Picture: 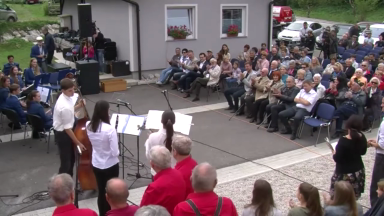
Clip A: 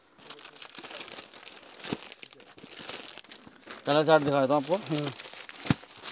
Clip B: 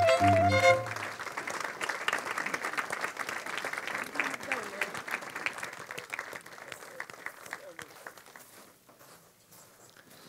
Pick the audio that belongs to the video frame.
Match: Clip B